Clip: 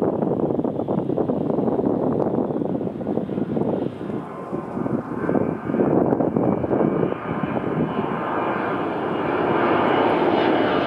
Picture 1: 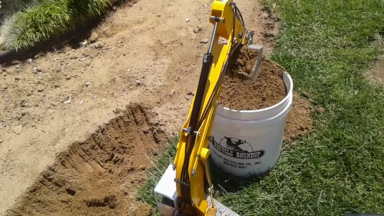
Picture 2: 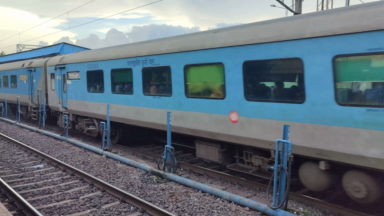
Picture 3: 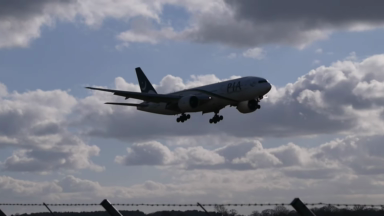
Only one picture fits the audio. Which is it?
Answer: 3